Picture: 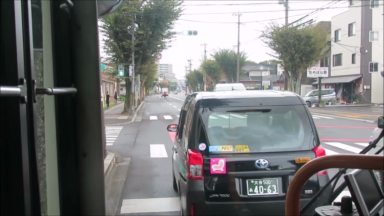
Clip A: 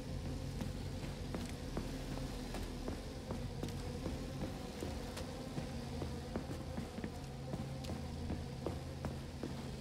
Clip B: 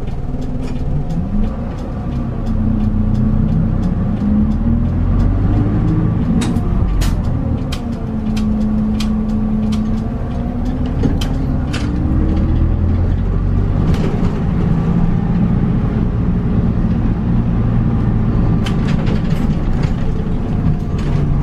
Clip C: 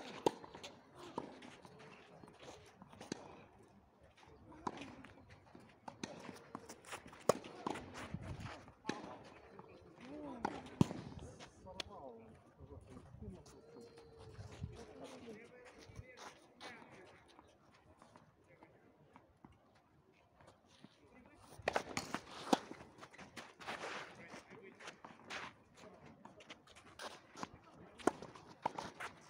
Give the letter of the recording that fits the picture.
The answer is B